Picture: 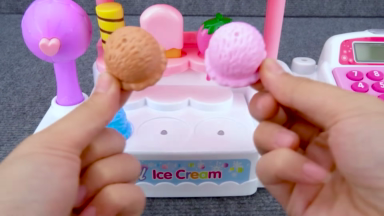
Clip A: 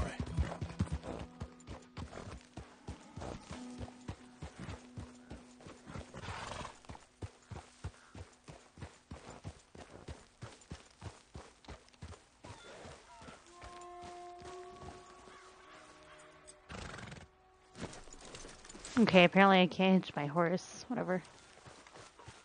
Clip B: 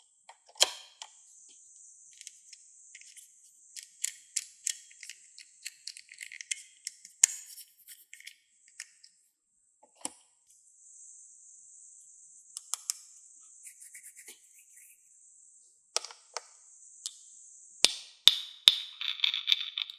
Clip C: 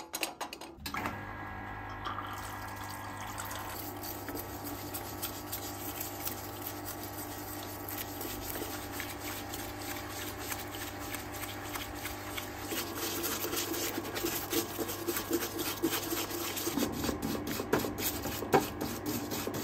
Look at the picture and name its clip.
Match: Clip B